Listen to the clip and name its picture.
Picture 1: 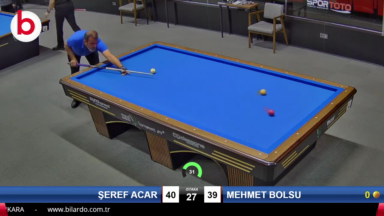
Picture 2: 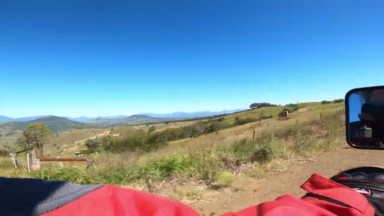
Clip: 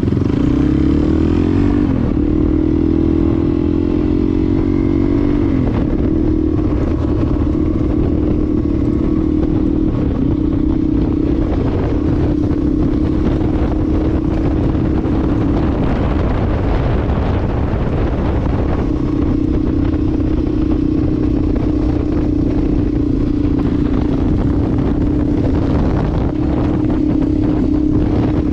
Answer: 2